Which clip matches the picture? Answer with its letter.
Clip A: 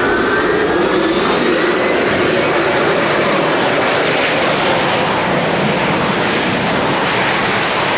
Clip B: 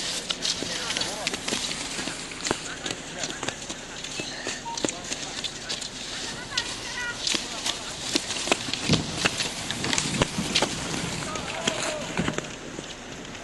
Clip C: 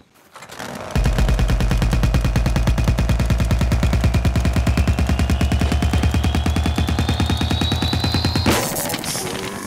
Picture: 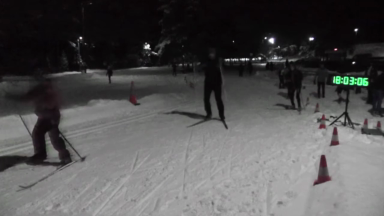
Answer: B